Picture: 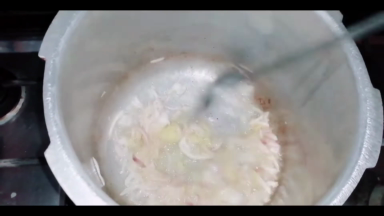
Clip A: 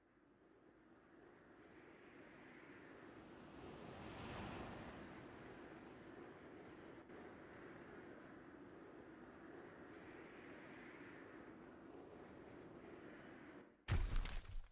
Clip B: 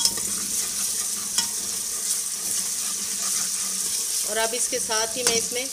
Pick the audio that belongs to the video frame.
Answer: B